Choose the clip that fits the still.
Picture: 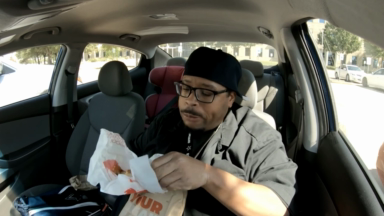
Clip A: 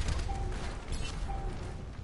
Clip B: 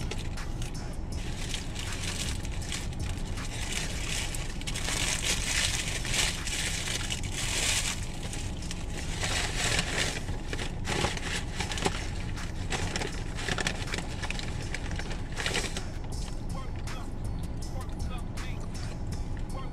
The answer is B